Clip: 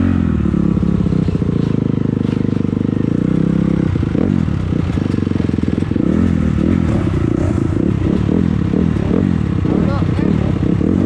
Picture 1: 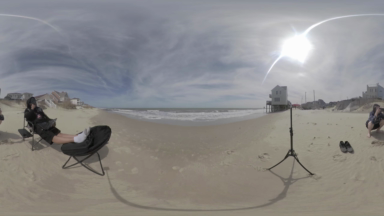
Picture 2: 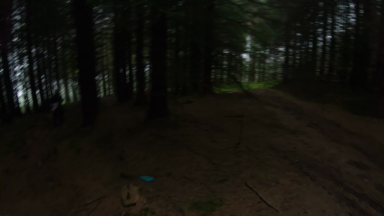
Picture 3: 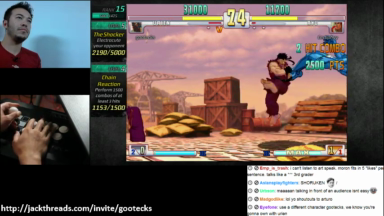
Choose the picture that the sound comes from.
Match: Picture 2